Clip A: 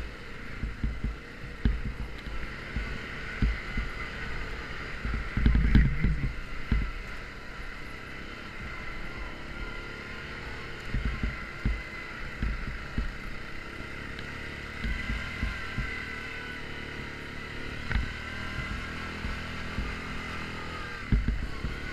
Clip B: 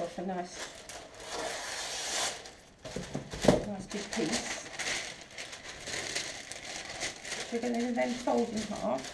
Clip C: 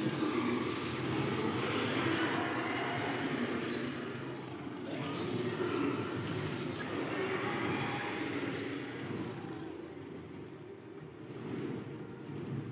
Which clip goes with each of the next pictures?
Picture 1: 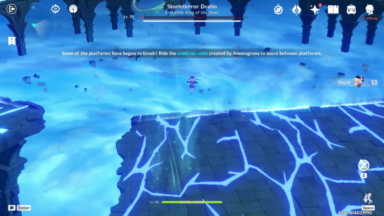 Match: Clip C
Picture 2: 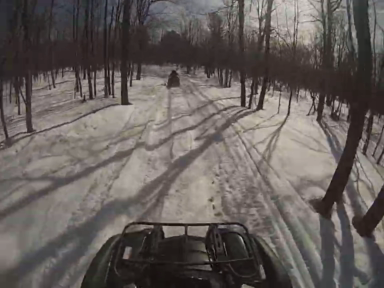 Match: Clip A